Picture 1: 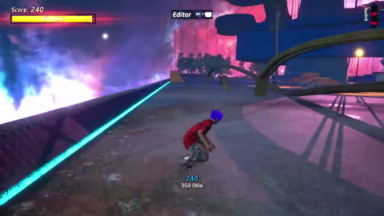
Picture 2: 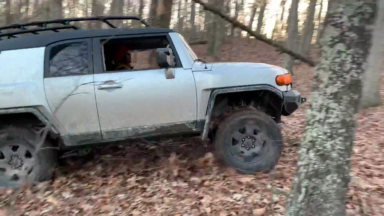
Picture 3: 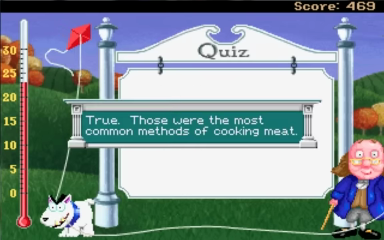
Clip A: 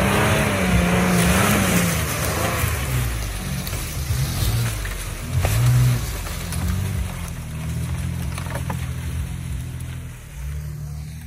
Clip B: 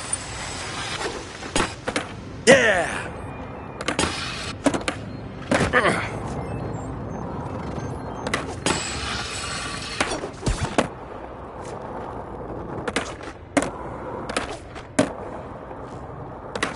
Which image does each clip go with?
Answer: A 2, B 1